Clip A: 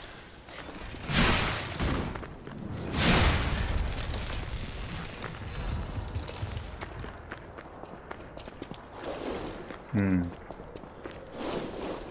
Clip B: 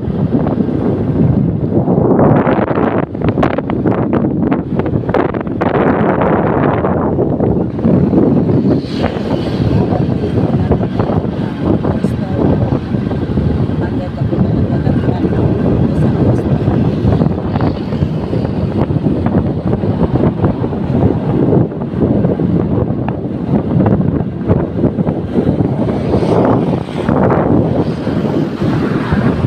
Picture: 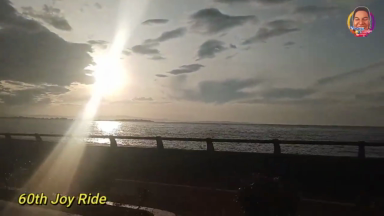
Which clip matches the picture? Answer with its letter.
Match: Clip B